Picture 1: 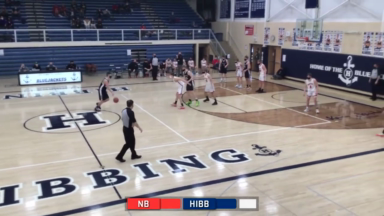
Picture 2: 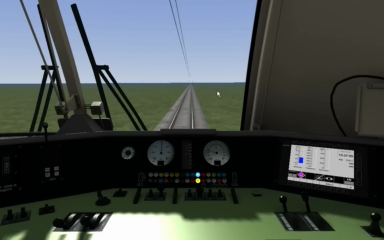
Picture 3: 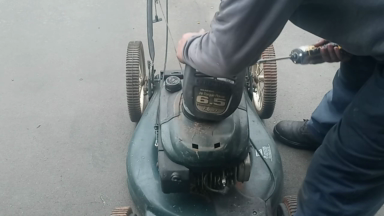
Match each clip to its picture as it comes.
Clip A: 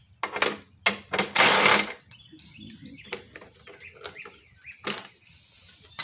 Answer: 3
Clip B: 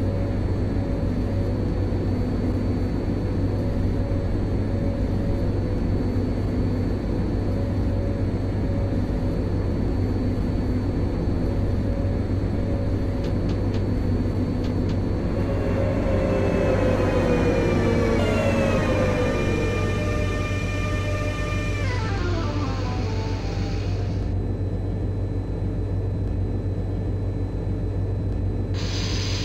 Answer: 2